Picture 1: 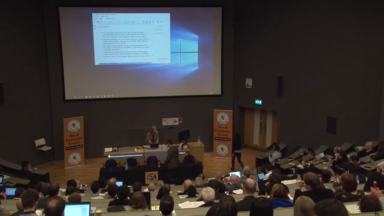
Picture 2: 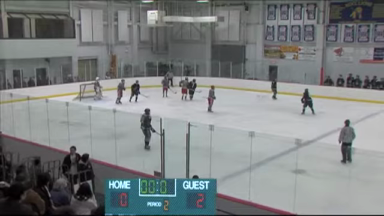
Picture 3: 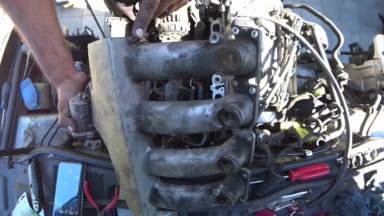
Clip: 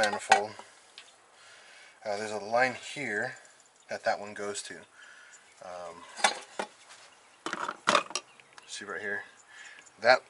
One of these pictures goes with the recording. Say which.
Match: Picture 3